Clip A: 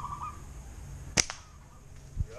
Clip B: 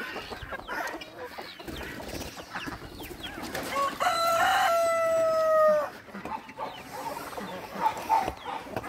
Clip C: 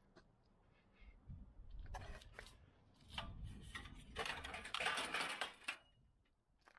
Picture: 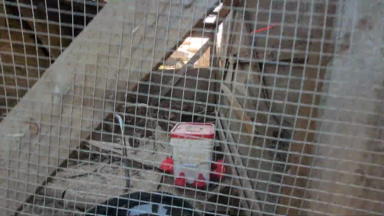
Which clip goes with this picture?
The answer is B